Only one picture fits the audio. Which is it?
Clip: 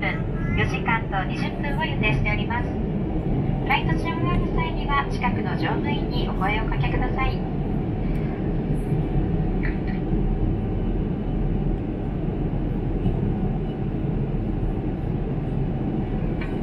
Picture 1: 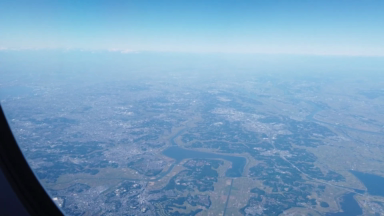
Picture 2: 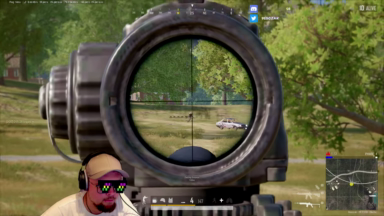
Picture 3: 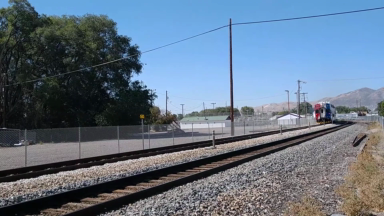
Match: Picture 1